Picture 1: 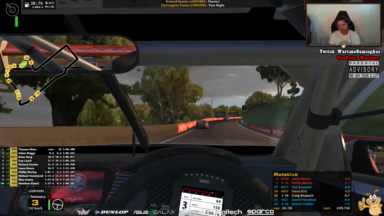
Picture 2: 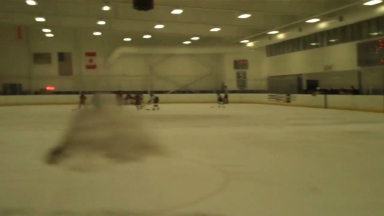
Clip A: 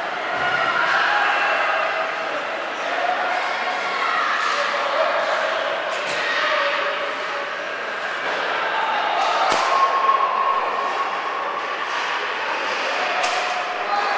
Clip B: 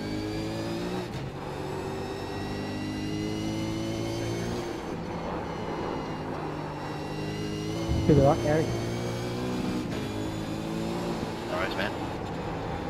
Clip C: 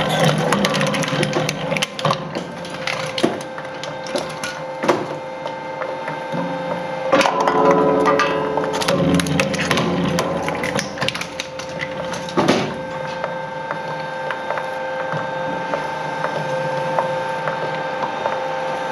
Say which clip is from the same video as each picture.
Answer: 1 B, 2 A